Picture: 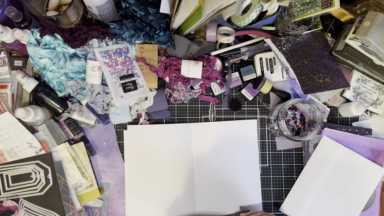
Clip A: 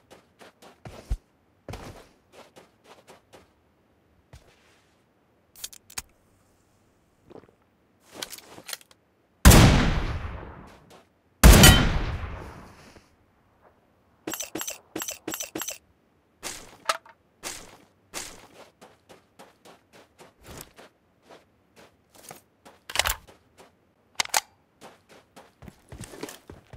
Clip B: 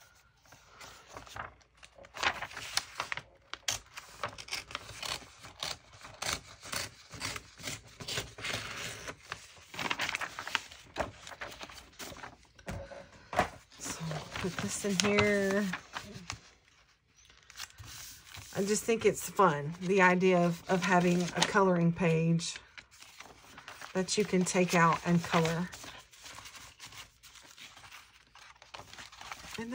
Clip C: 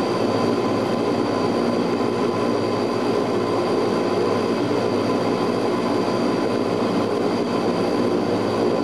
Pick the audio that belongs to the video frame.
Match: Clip B